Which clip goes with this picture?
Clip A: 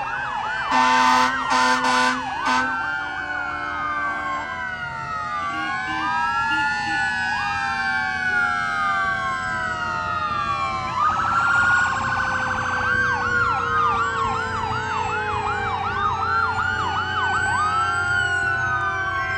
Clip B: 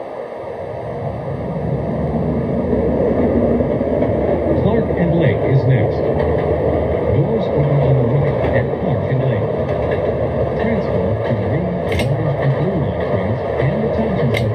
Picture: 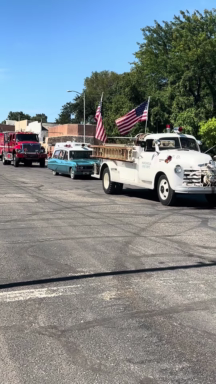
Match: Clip A